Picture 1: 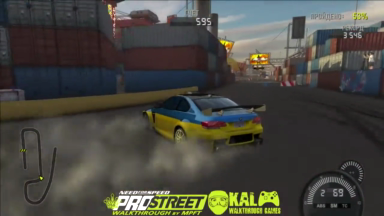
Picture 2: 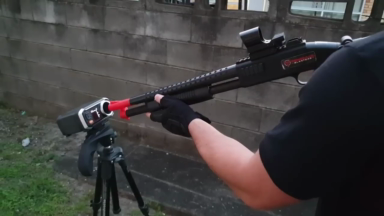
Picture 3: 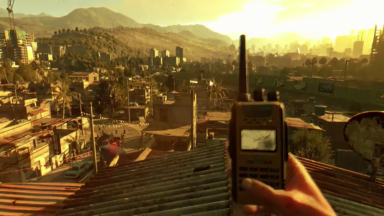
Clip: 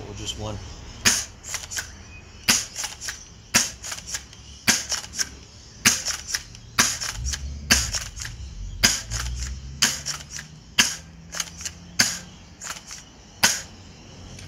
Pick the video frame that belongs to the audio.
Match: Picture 2